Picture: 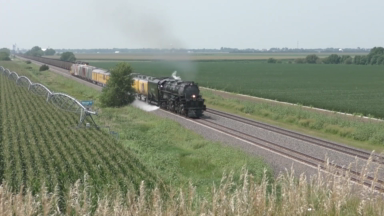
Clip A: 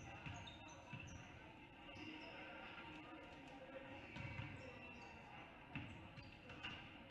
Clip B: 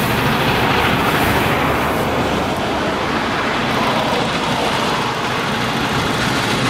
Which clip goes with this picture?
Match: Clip B